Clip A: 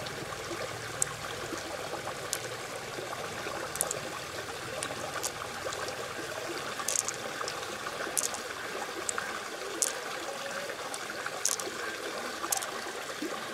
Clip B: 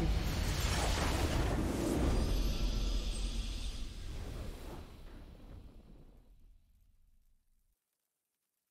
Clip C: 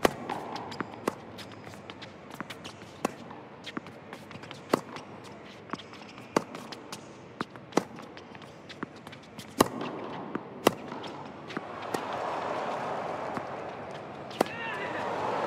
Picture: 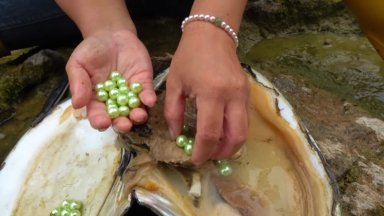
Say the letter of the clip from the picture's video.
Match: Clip A